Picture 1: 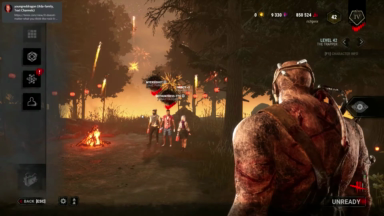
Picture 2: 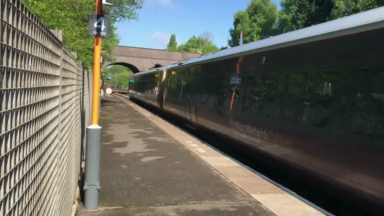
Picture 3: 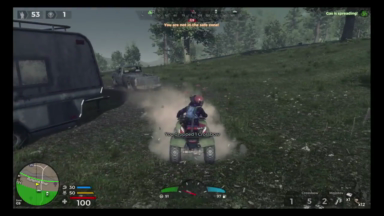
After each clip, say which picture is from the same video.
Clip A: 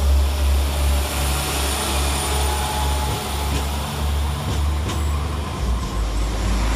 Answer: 2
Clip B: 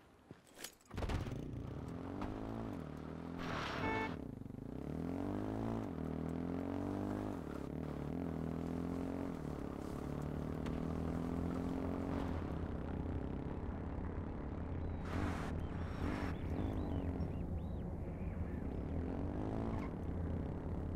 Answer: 3